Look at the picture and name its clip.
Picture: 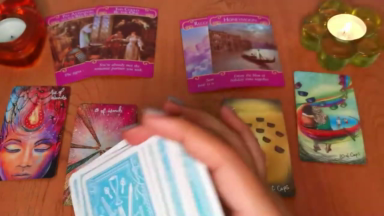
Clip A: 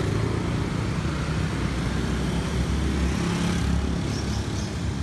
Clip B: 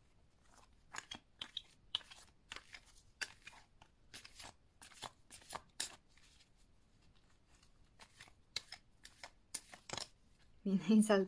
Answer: B